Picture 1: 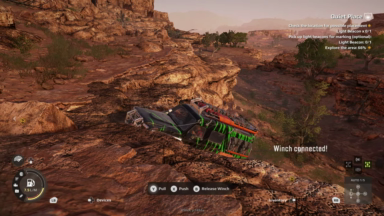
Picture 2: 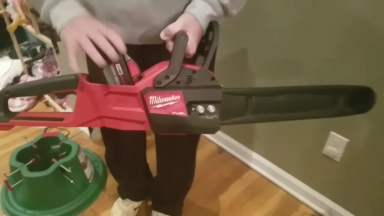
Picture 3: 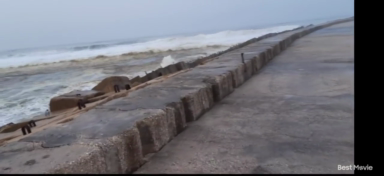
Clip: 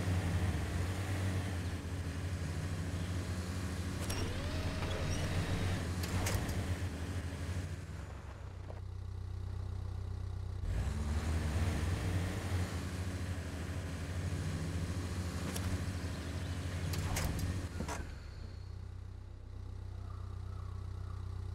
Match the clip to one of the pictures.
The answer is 1